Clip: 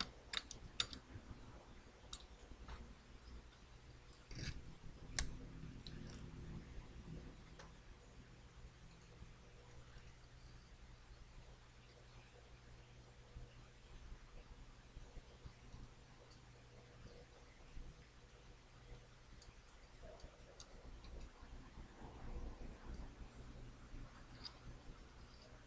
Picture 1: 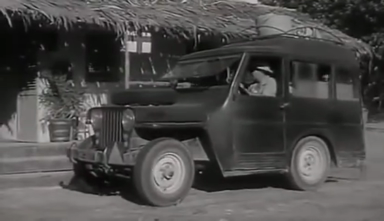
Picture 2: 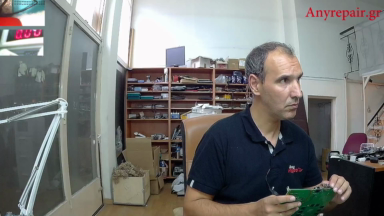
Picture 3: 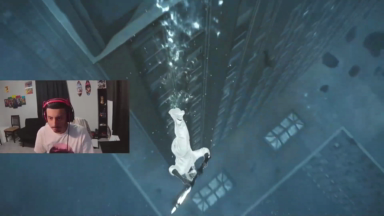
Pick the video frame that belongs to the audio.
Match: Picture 2